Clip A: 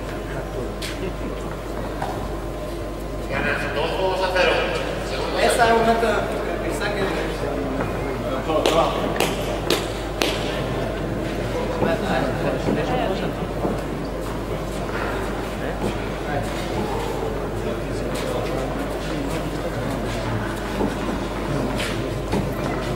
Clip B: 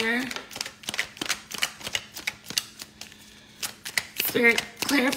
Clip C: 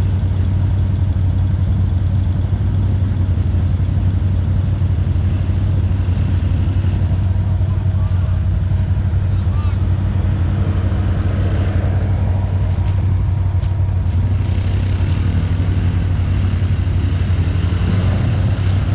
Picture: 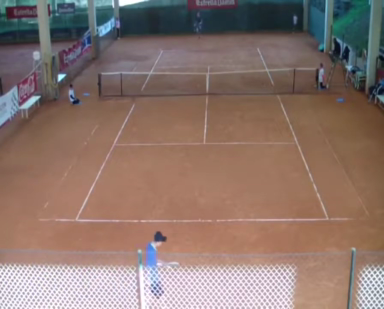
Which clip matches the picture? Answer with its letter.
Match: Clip A